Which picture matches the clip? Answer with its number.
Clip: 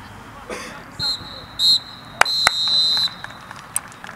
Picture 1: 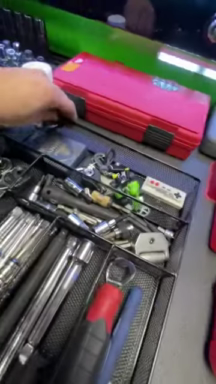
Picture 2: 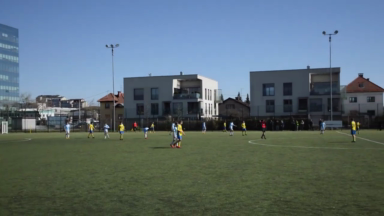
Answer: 2